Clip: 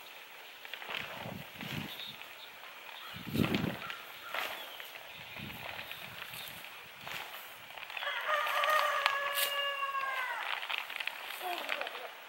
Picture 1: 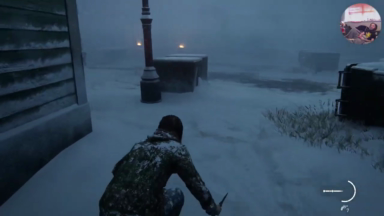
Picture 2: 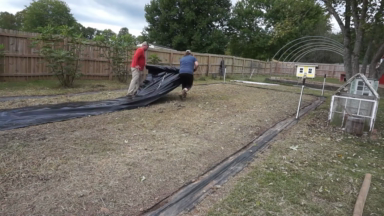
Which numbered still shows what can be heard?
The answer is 2